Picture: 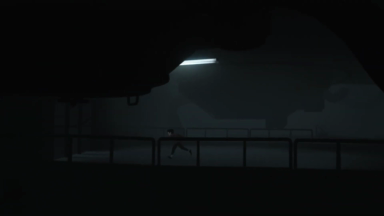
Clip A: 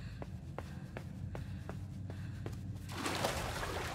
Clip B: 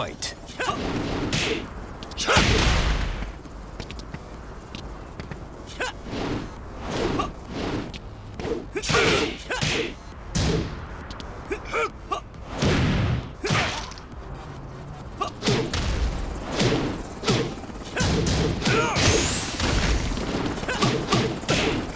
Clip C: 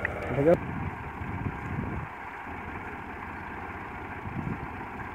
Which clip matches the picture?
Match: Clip A